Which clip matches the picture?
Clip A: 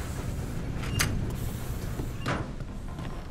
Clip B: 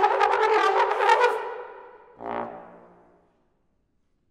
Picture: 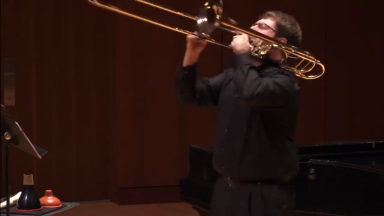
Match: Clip B